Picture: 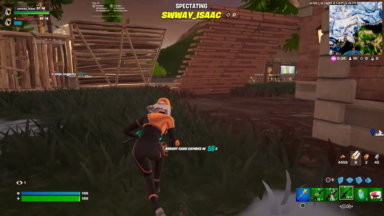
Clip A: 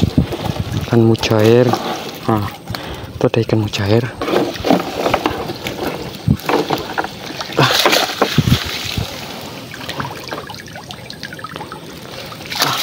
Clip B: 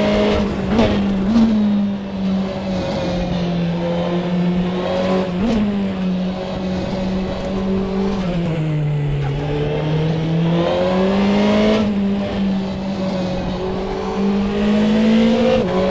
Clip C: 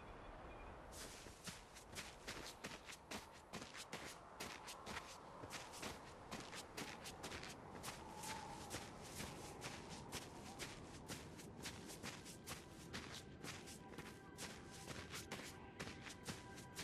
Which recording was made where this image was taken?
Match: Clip C